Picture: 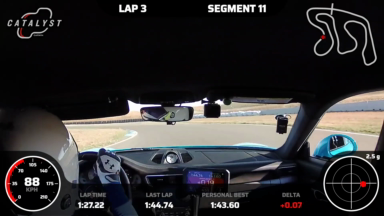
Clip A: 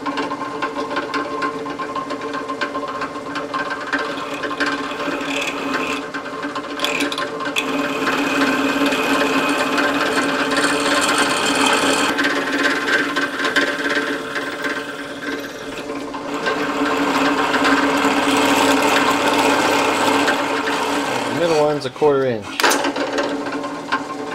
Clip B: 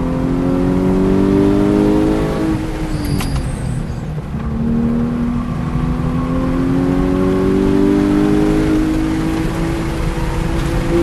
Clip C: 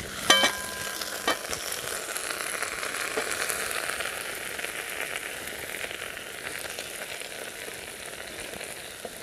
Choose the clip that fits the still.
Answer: B